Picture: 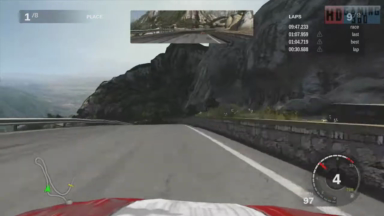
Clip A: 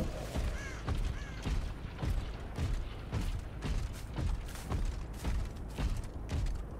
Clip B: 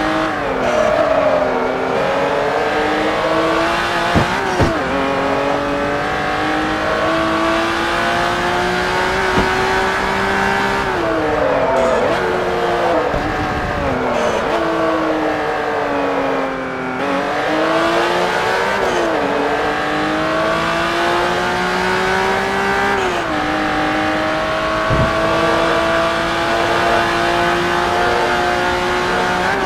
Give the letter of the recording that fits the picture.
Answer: B